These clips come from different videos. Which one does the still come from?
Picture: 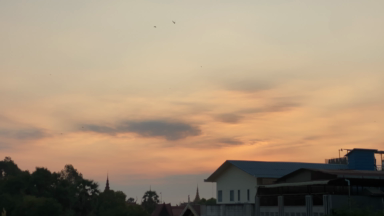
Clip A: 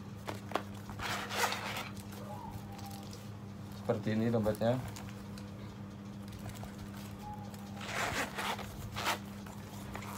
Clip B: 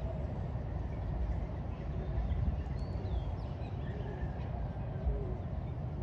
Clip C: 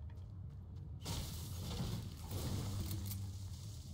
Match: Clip B